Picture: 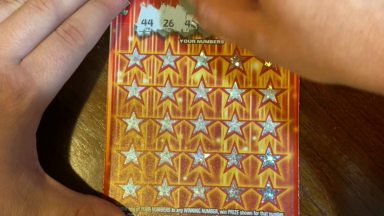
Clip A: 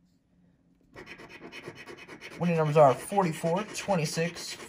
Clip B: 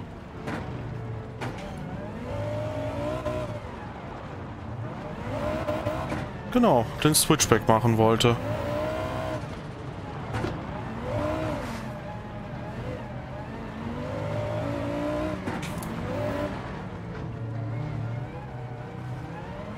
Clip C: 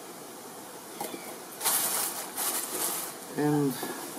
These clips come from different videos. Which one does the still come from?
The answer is A